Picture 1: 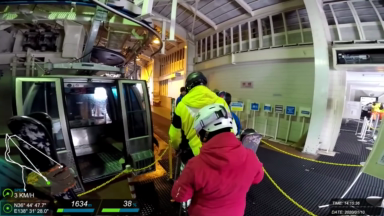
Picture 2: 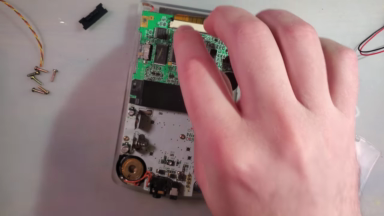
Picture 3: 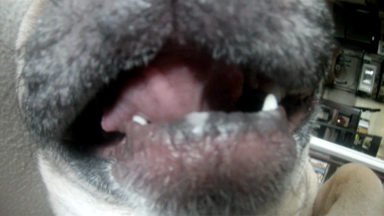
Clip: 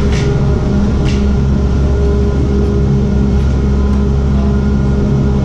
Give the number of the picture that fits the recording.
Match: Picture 1